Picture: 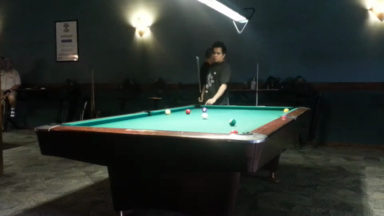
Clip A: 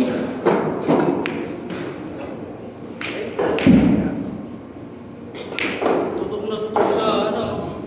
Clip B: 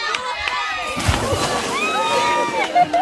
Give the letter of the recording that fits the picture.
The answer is A